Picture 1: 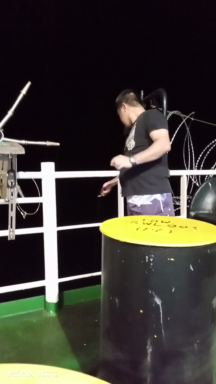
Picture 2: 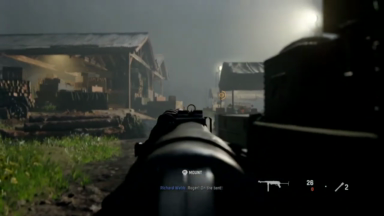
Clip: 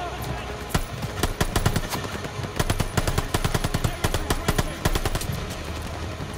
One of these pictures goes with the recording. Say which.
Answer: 2